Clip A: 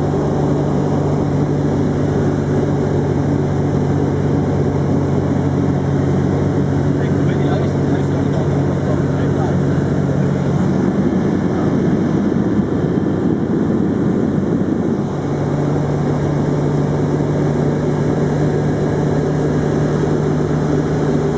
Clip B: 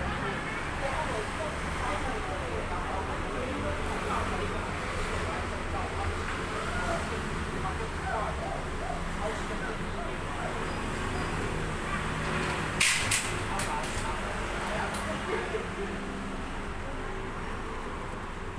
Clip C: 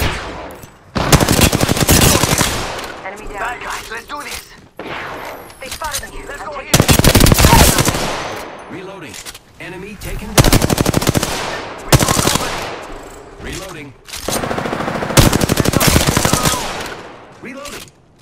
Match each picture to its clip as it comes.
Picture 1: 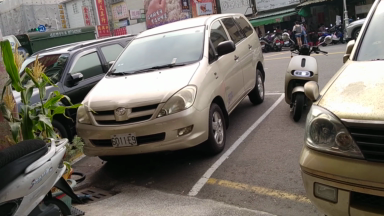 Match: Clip B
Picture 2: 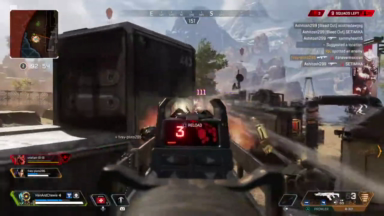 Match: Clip C